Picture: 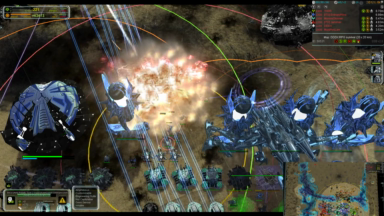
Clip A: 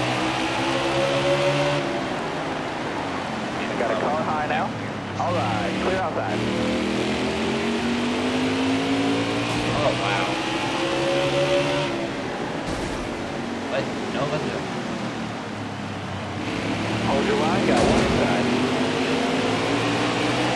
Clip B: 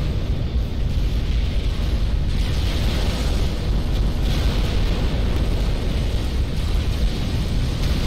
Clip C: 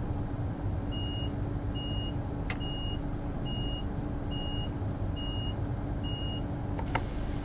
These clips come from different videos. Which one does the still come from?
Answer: B